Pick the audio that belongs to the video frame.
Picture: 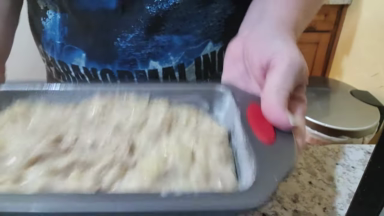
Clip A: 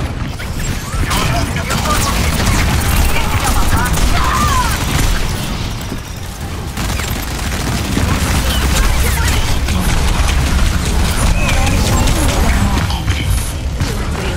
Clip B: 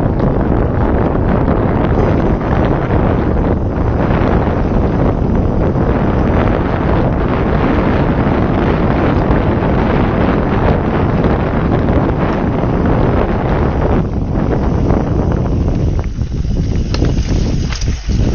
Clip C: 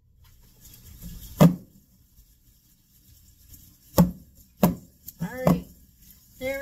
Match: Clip C